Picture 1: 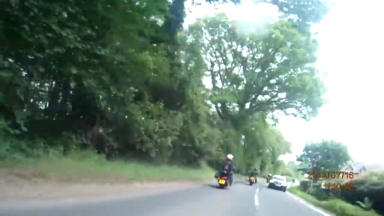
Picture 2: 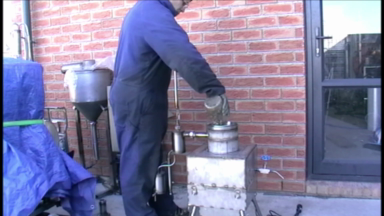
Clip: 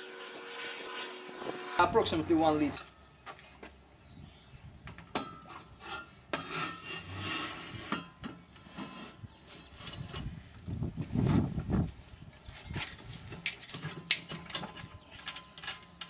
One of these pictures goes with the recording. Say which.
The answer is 2